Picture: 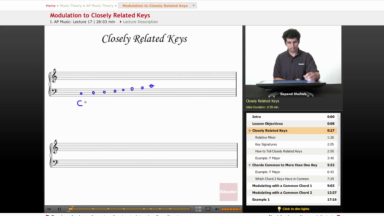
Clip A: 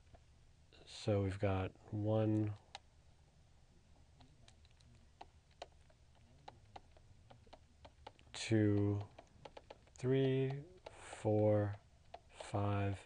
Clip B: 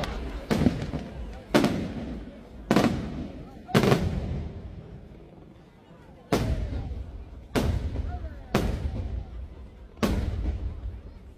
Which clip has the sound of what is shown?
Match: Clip A